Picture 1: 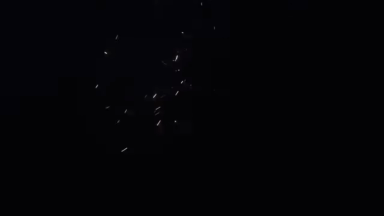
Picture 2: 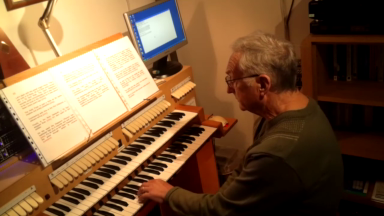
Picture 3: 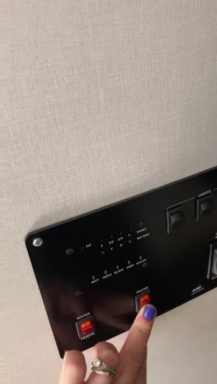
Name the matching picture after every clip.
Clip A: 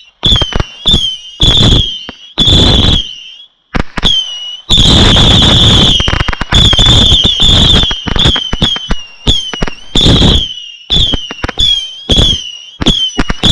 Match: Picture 1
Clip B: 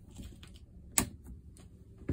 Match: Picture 3